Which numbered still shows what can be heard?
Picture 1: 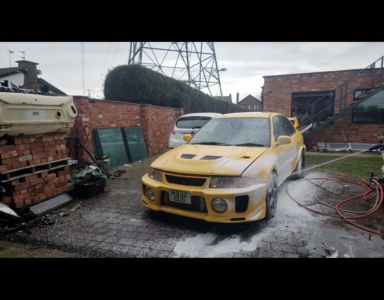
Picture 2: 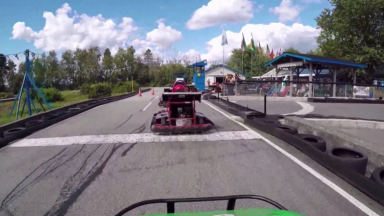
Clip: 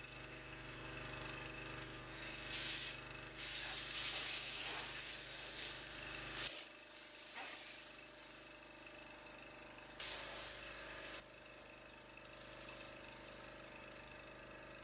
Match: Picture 1